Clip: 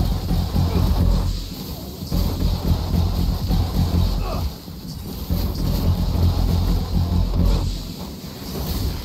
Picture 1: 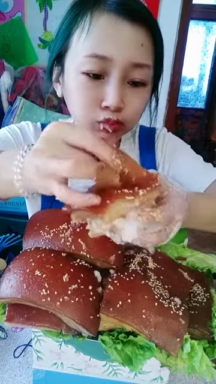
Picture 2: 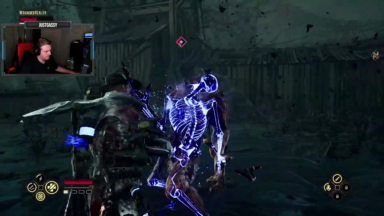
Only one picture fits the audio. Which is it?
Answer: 2